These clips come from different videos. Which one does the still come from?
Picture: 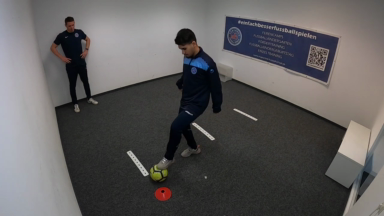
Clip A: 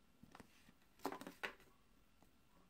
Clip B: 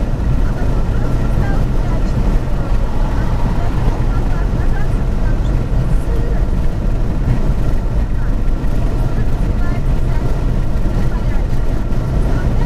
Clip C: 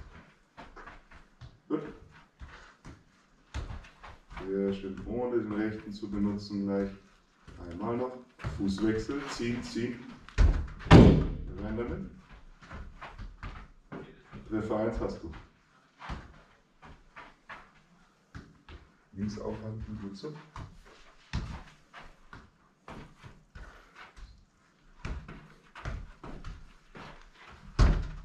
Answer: C